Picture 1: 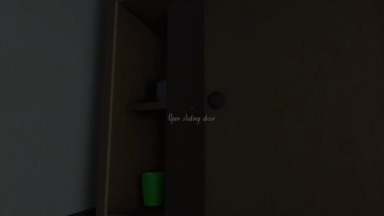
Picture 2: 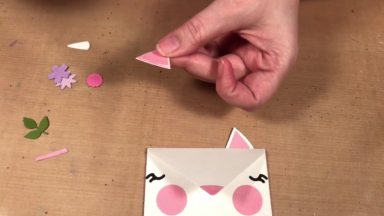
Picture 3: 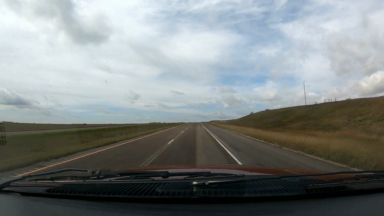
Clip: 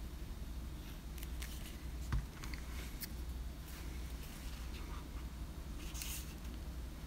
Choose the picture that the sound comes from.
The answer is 2